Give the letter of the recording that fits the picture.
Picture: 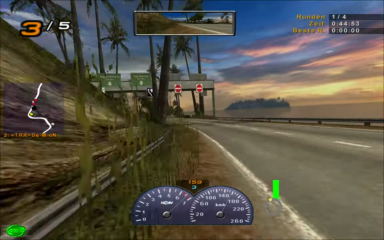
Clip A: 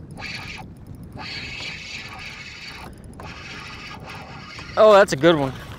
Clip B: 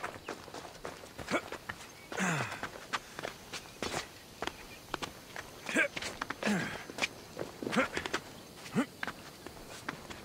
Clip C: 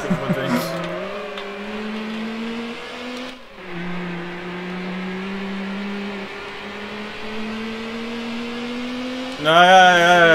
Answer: C